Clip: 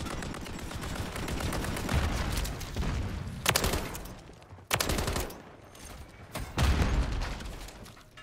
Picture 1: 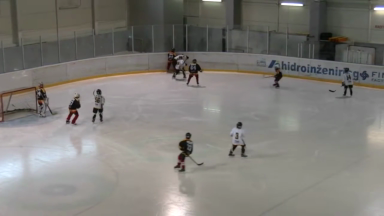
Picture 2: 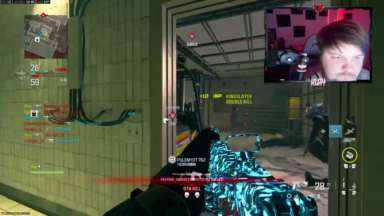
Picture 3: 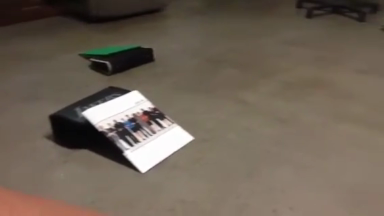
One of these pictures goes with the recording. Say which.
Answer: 2